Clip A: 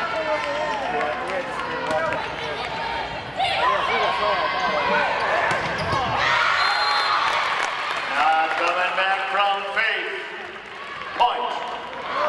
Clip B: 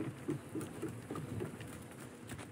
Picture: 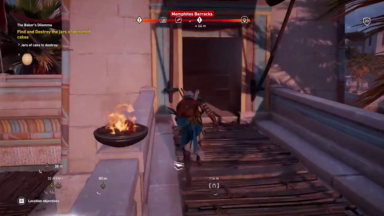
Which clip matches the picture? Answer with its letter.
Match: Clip B